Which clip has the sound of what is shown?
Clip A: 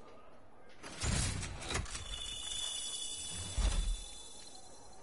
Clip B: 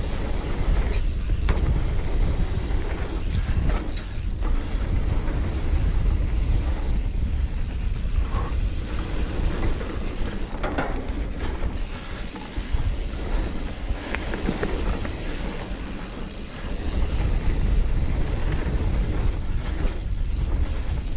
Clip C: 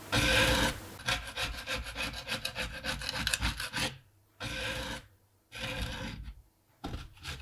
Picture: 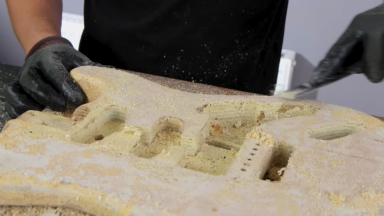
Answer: C